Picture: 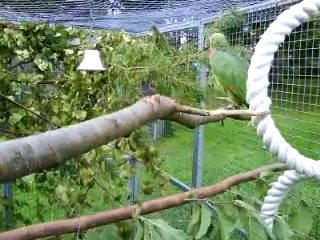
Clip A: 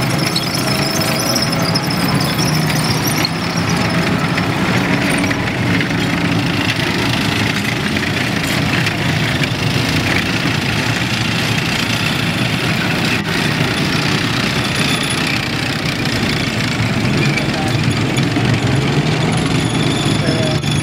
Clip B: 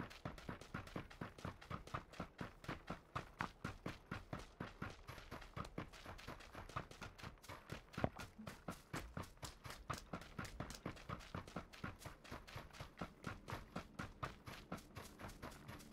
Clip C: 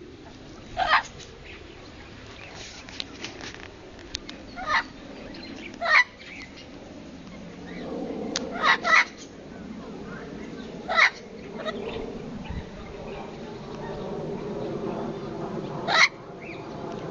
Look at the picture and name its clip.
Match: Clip C